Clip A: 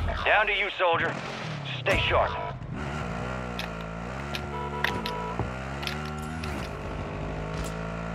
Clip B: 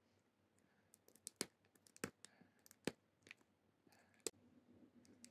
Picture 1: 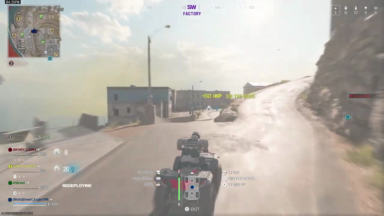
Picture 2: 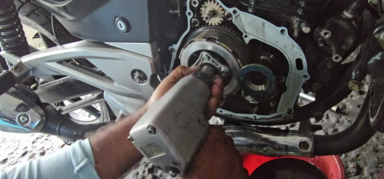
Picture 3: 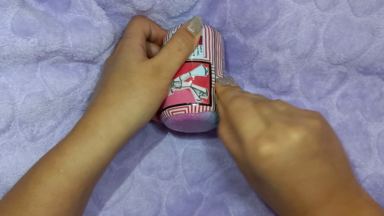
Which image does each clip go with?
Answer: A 1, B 3